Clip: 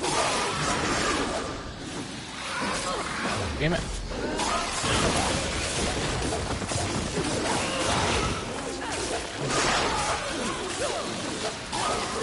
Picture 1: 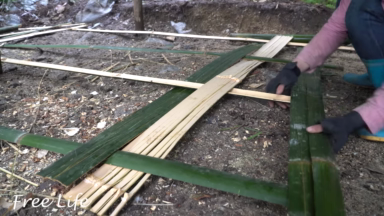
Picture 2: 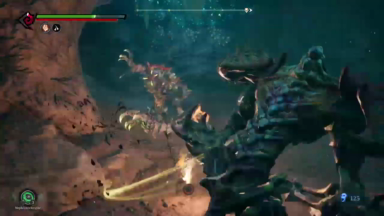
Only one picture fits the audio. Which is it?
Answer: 2